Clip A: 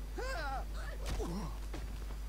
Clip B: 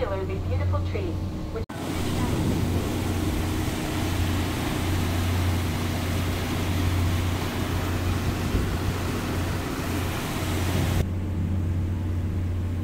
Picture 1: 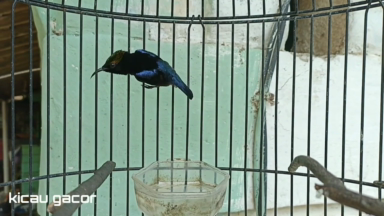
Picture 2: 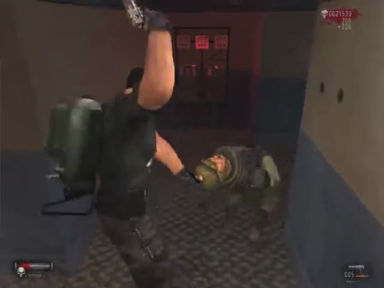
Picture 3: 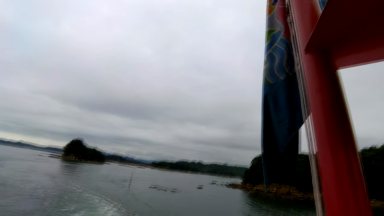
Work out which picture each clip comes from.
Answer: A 2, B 3